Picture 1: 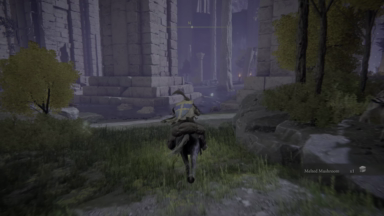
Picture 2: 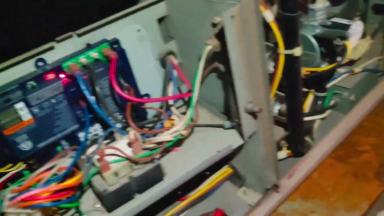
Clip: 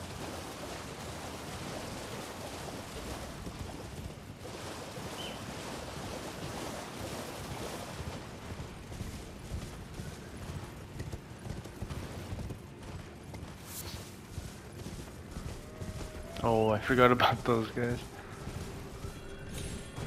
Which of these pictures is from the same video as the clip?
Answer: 1